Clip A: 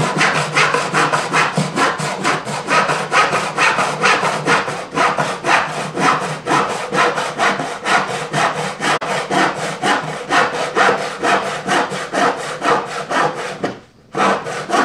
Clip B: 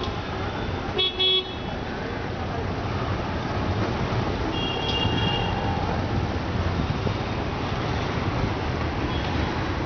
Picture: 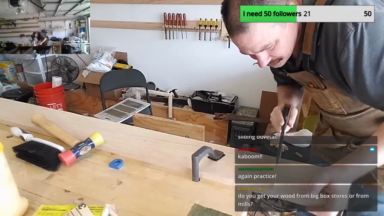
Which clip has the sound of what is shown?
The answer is A